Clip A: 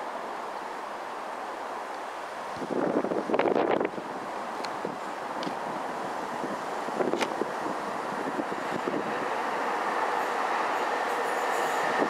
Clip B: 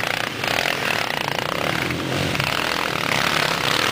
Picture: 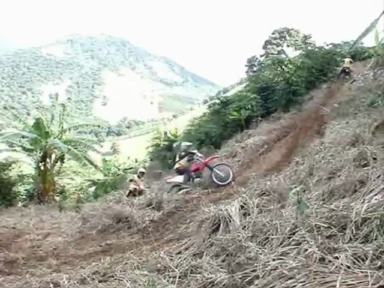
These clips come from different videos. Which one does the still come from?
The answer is B